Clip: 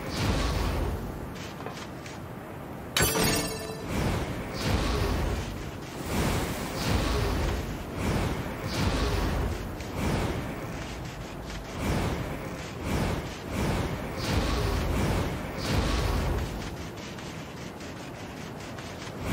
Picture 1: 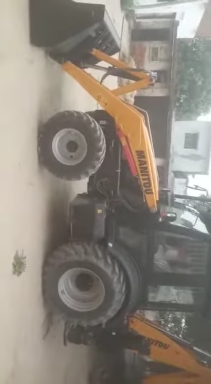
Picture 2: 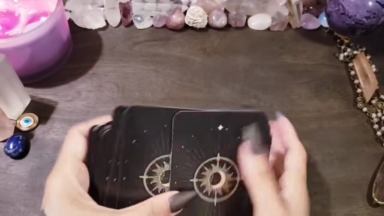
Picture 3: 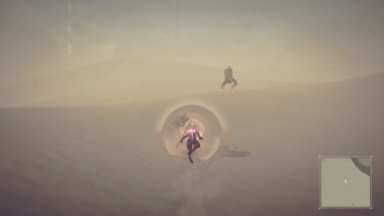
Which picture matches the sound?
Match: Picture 3